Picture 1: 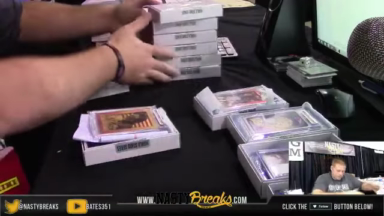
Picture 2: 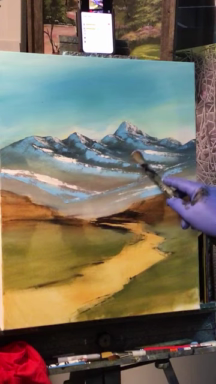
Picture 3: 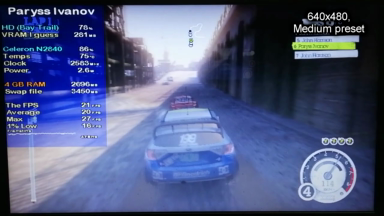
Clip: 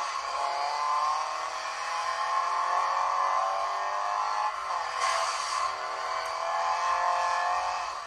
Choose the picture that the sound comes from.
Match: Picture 3